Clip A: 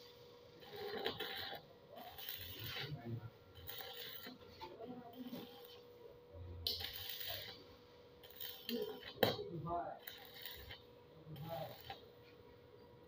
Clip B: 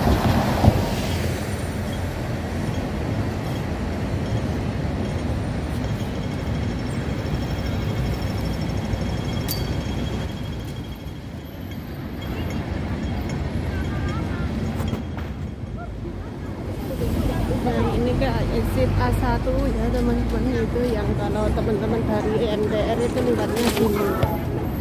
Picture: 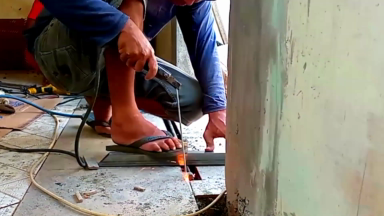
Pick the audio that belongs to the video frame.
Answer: A